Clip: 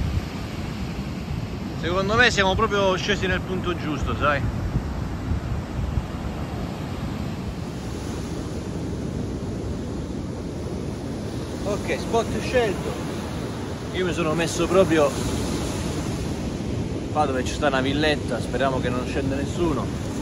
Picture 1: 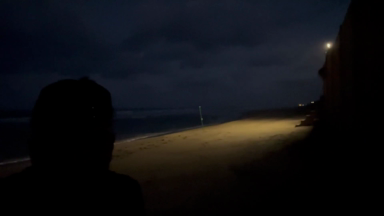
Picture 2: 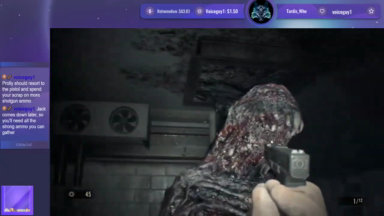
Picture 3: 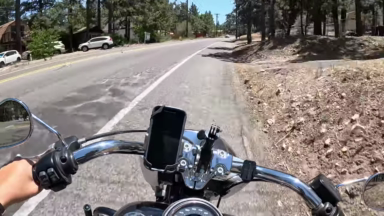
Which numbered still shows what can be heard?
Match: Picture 1